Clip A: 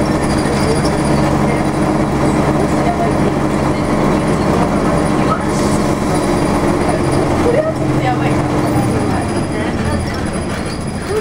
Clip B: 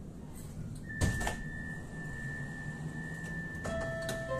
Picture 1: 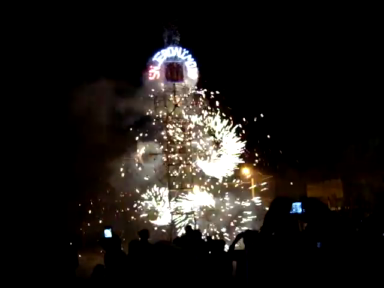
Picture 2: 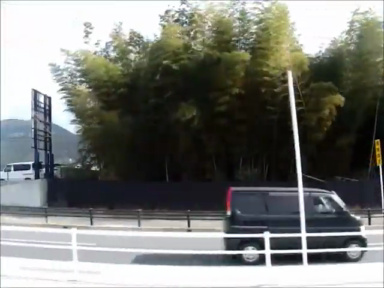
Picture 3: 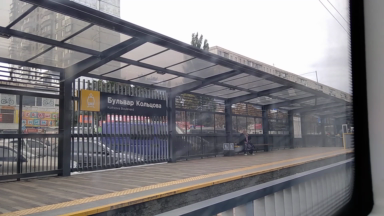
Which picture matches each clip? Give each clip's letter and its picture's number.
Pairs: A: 2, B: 3